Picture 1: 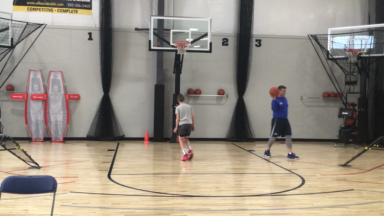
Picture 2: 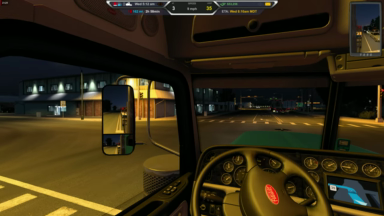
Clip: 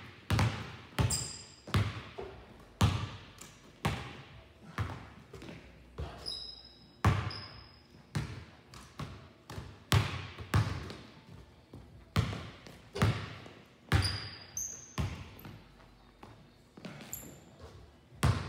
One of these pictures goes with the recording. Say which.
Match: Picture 1